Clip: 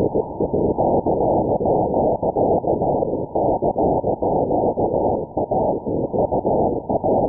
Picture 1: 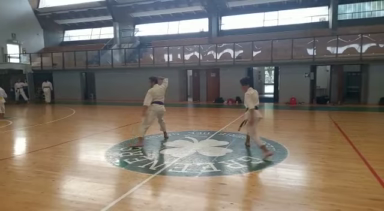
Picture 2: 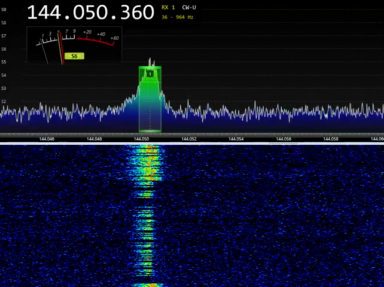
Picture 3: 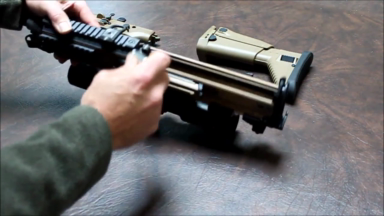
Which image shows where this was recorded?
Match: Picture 2